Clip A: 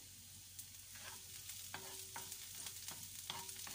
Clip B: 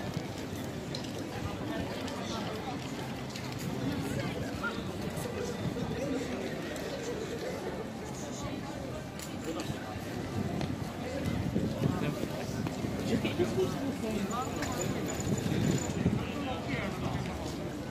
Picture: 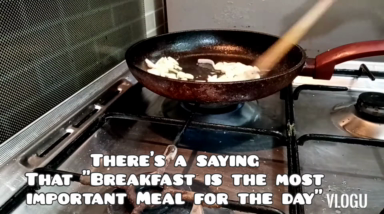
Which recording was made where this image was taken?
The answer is A